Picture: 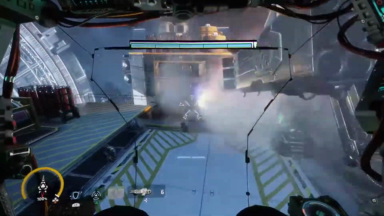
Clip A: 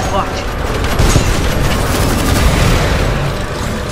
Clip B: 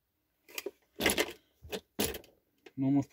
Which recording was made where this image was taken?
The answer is A